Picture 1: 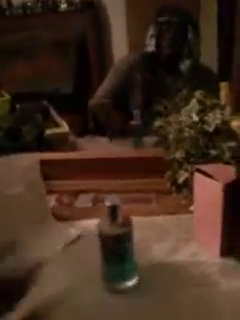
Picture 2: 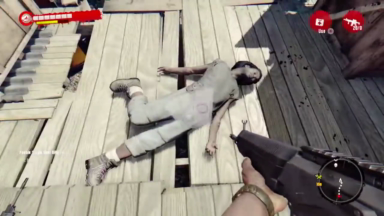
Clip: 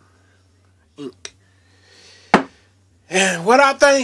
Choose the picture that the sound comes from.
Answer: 1